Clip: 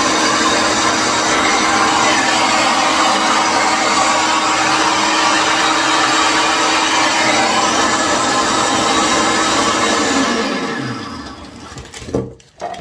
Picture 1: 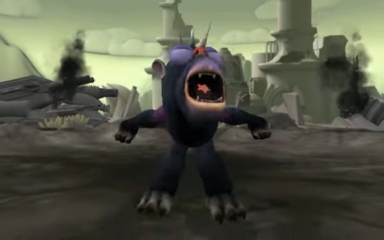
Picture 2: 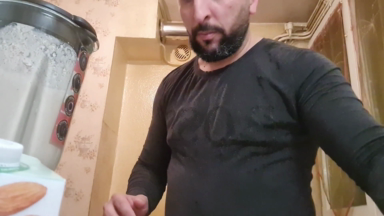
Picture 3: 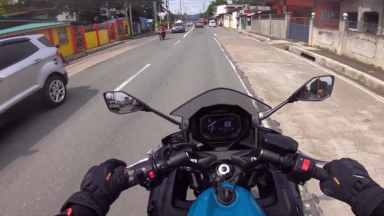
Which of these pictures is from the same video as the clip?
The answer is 2